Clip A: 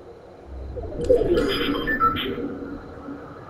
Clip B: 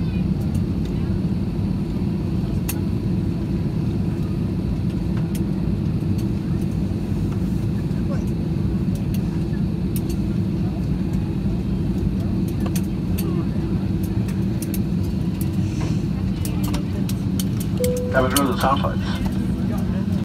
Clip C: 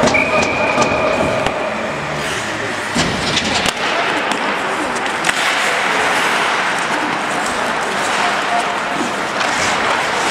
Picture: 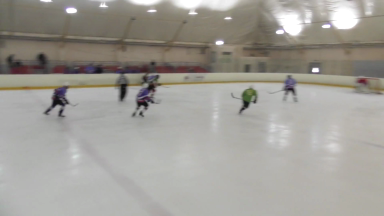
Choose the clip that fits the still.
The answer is C